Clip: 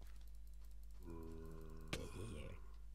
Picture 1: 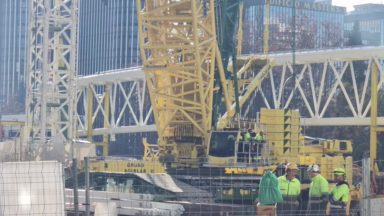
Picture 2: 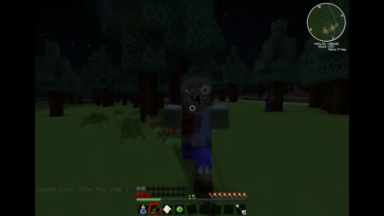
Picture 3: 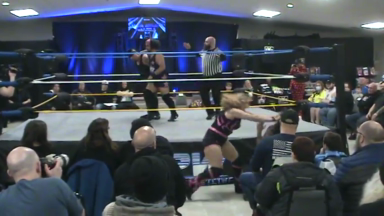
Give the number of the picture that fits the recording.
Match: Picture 2